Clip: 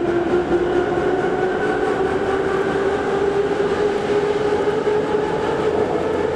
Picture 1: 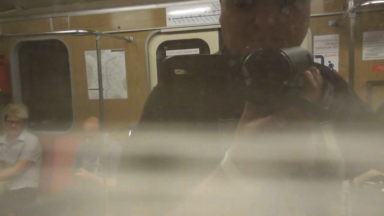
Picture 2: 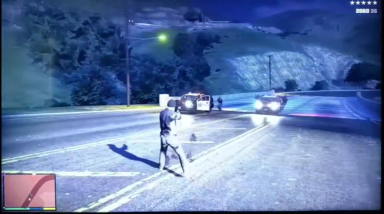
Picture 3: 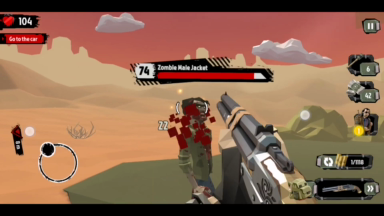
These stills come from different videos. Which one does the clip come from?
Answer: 1